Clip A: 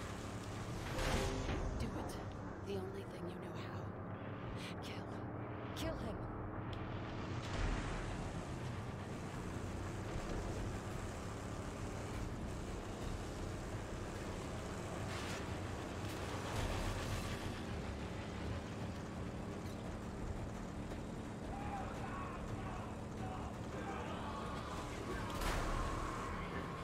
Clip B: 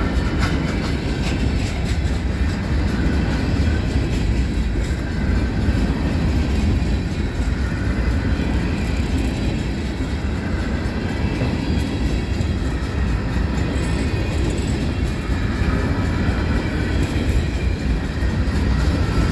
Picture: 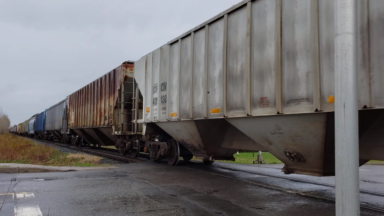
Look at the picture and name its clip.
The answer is B